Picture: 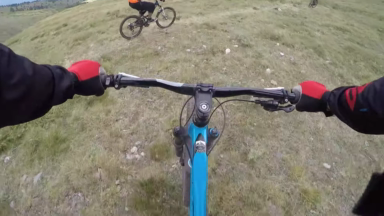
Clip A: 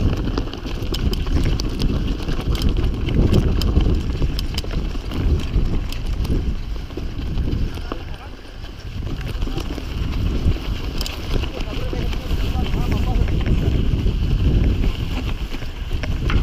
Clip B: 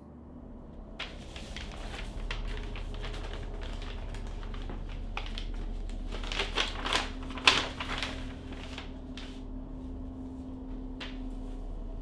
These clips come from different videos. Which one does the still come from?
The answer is A